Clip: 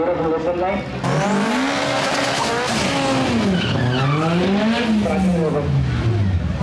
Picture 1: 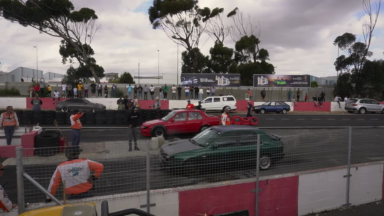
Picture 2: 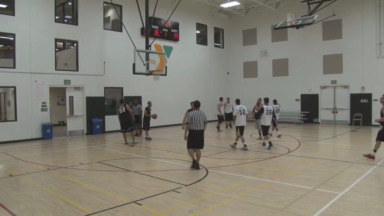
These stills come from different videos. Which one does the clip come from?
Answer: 1